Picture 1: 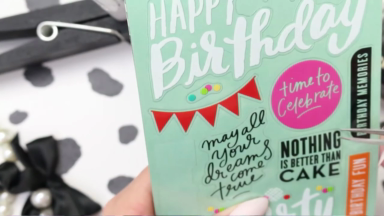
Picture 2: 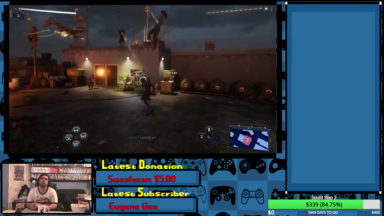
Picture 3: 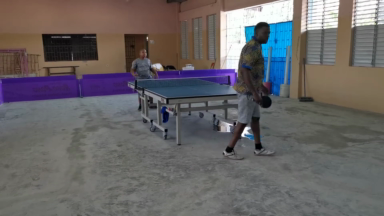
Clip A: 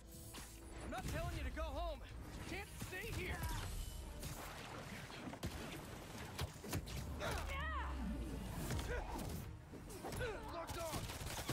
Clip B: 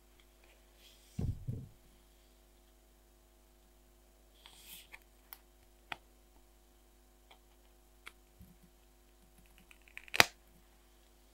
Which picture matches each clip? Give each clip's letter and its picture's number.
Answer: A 2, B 1